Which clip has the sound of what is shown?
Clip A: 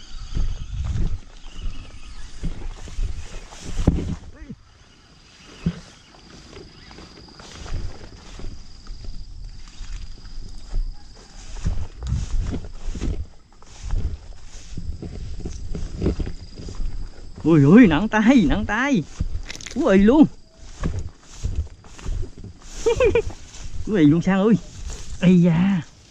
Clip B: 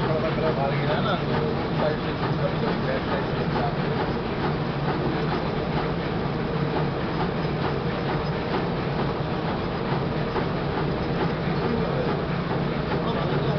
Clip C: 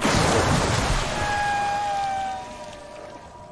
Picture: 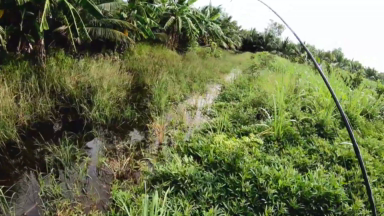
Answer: A